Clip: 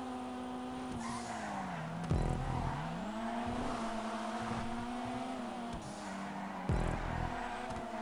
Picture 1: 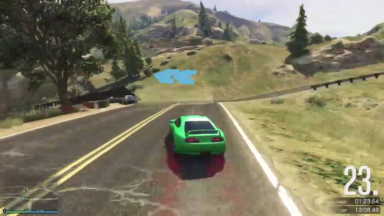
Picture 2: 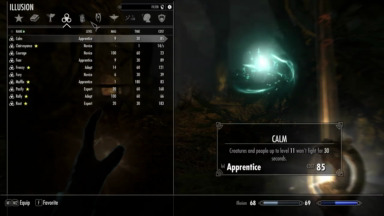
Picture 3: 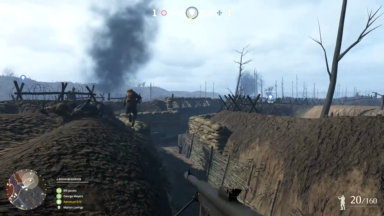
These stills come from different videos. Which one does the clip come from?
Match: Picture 1